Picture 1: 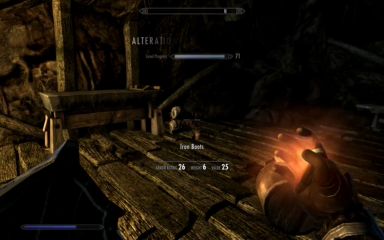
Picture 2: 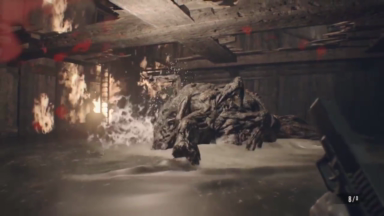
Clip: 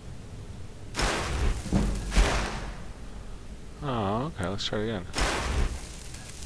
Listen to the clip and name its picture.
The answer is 1